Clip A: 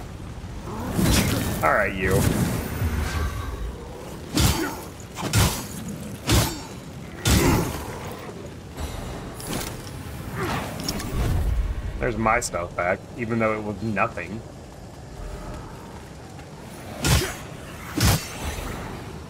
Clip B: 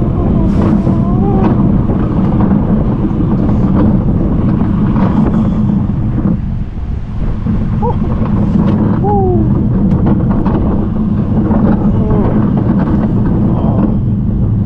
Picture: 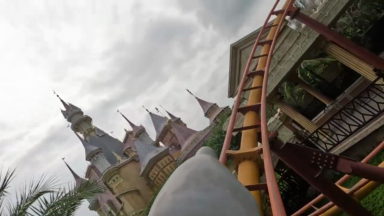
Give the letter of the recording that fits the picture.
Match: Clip B